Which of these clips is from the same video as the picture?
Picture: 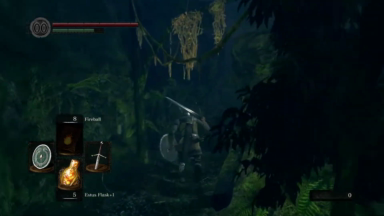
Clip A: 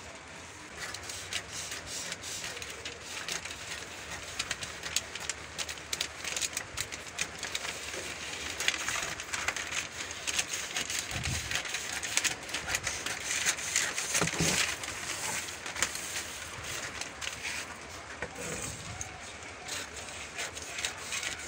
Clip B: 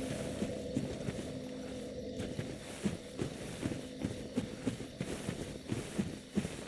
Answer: B